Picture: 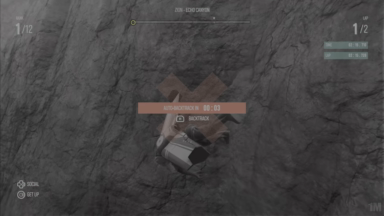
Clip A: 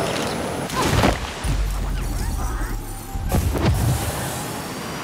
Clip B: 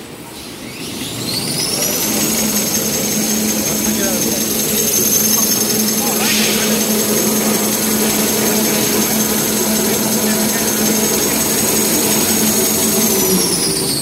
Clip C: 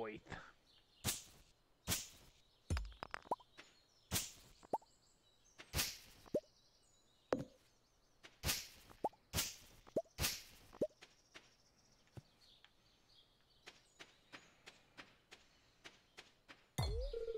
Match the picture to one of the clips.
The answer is A